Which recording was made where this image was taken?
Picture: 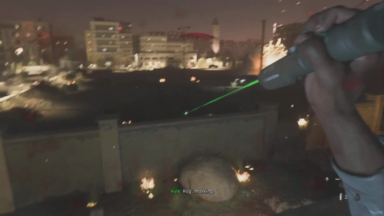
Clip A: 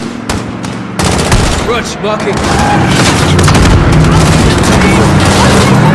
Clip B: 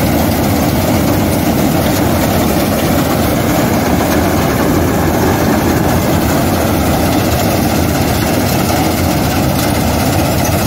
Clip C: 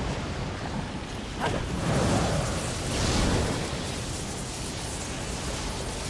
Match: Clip A